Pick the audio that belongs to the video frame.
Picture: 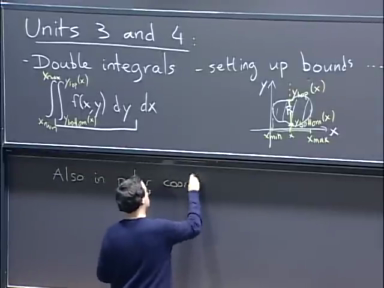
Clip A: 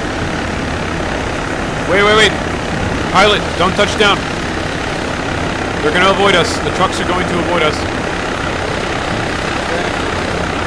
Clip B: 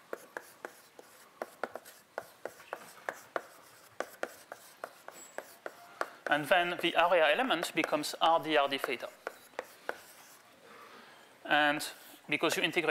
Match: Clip B